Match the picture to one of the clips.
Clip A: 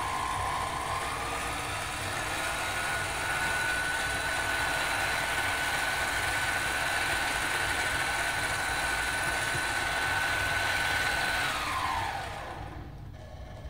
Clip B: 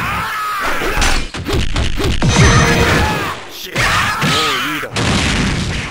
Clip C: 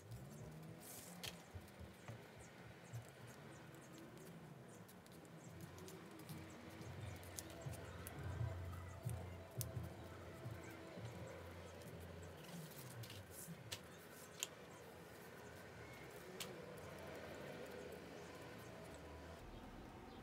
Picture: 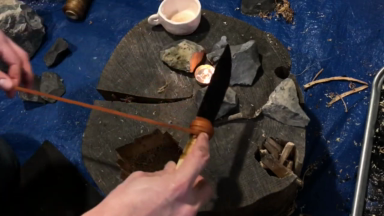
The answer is C